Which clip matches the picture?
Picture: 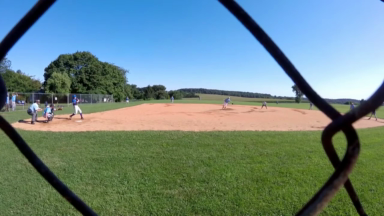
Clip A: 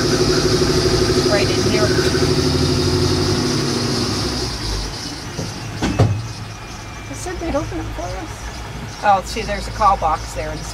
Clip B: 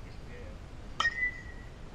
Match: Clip B